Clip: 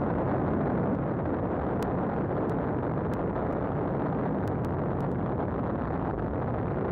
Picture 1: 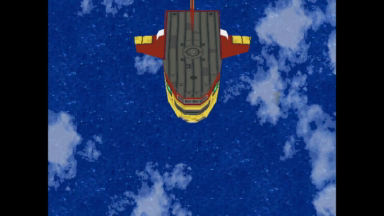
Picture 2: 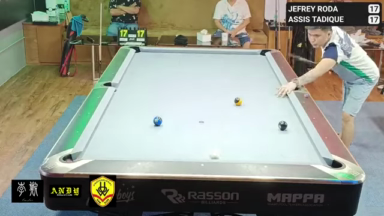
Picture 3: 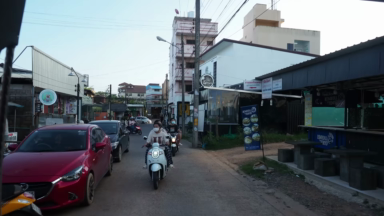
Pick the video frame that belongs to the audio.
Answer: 1